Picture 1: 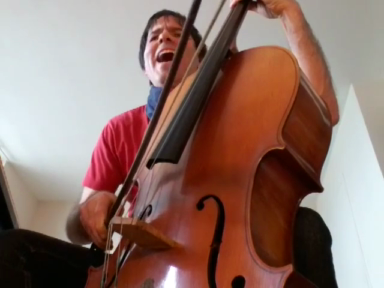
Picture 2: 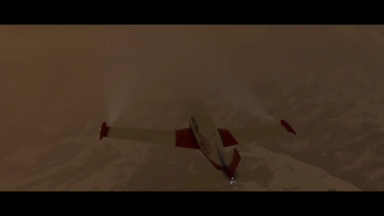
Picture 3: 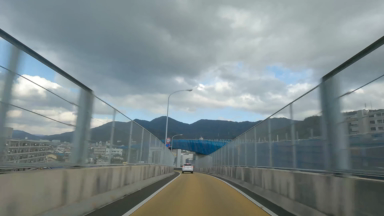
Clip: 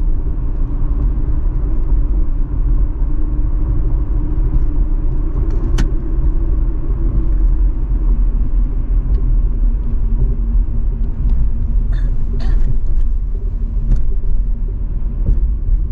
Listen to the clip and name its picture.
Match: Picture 3